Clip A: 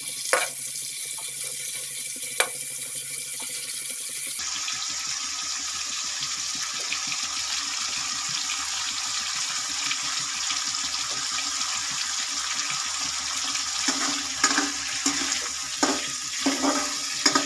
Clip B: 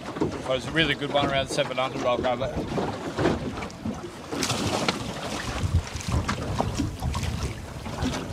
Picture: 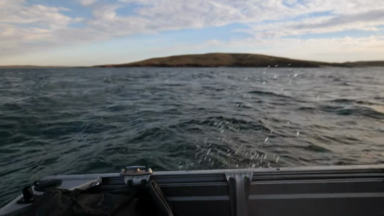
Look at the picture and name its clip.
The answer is B